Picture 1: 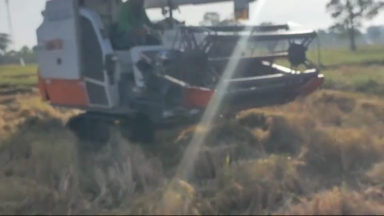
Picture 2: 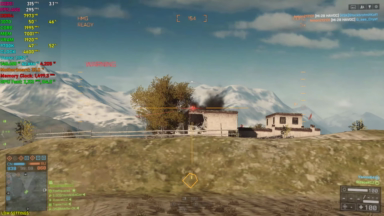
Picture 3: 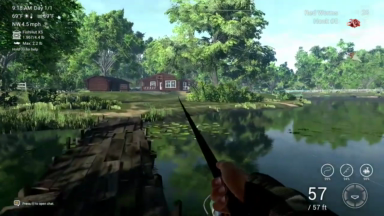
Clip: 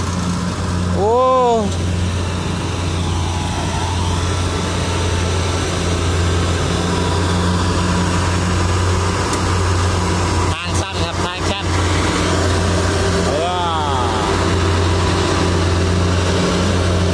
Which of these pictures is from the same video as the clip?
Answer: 1